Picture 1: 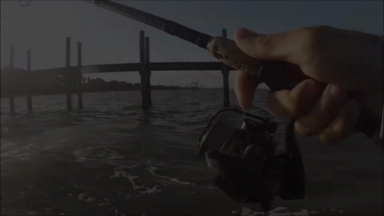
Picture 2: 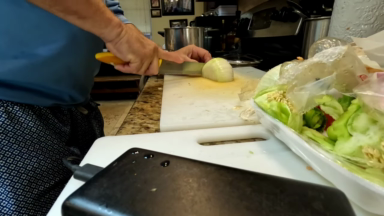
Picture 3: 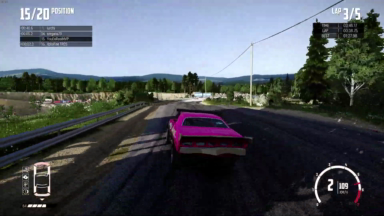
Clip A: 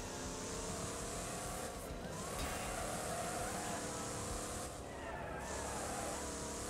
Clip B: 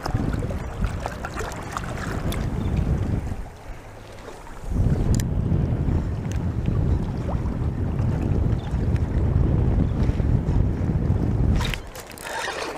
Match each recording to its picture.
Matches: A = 3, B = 1